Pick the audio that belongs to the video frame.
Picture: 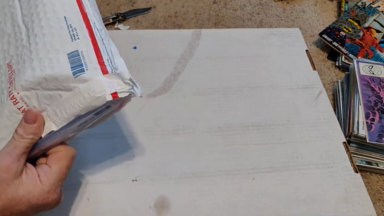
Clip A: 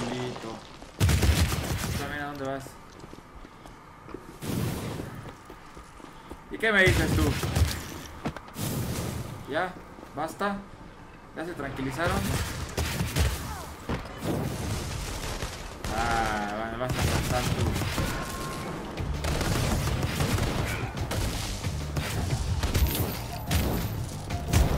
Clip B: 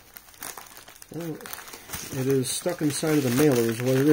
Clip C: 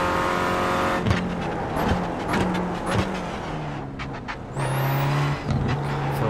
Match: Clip B